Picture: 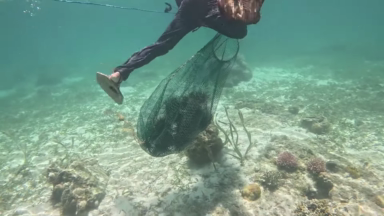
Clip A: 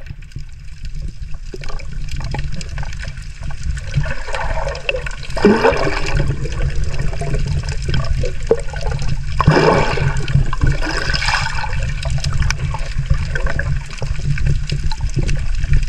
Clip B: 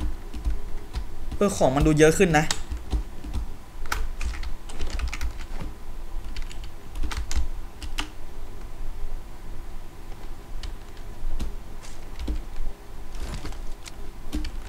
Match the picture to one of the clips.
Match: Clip A